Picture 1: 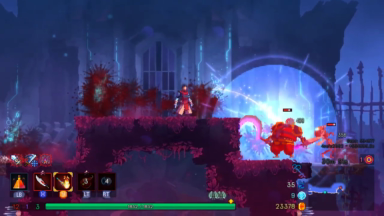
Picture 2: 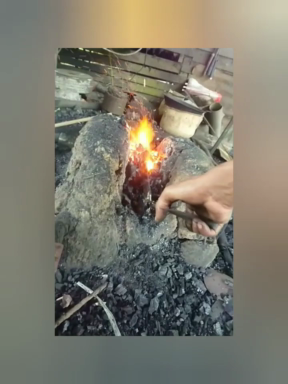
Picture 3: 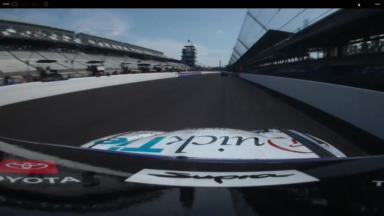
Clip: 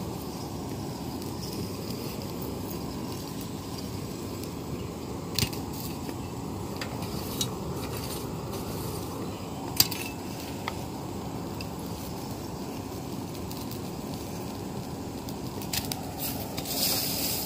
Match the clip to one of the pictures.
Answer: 2